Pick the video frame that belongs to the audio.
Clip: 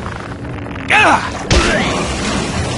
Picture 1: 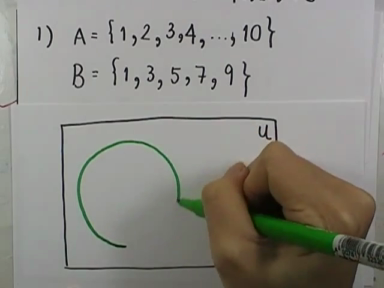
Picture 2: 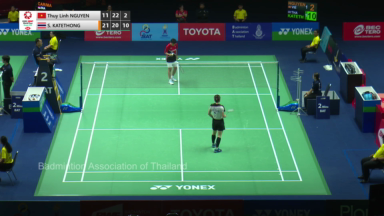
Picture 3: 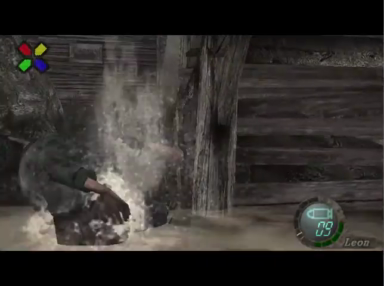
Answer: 3